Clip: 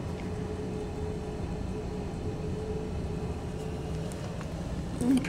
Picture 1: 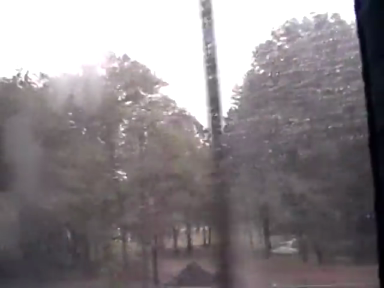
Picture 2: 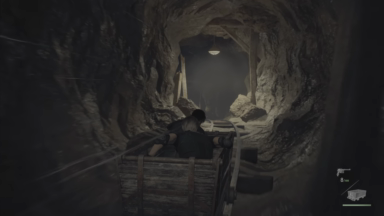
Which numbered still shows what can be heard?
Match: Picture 1